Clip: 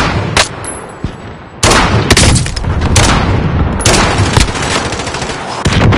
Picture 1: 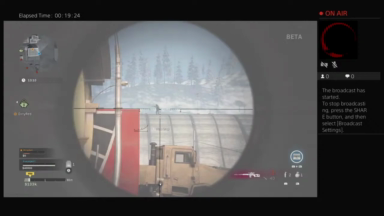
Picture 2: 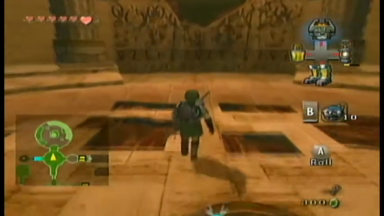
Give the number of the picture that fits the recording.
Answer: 1